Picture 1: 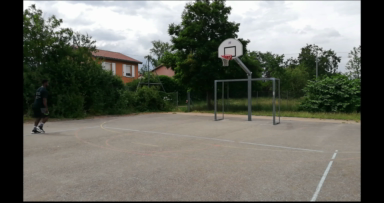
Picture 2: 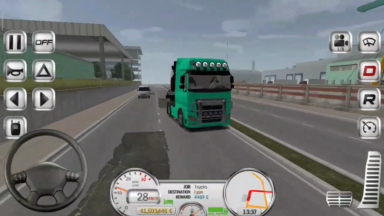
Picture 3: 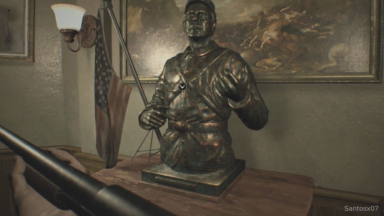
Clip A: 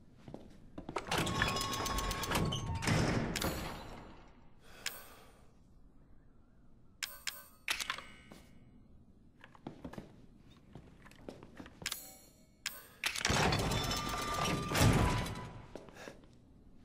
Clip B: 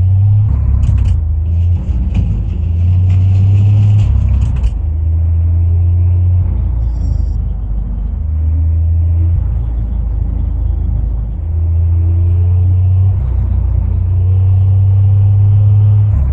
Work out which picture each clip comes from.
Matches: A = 3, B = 2